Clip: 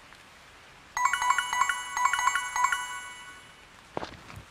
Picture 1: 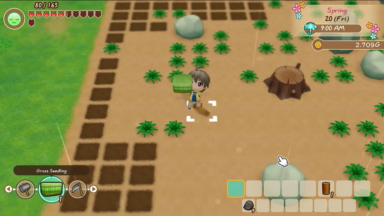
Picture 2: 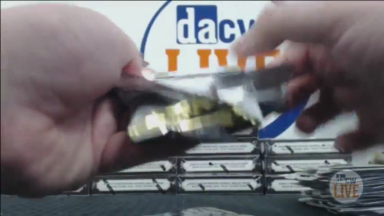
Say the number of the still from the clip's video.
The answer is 1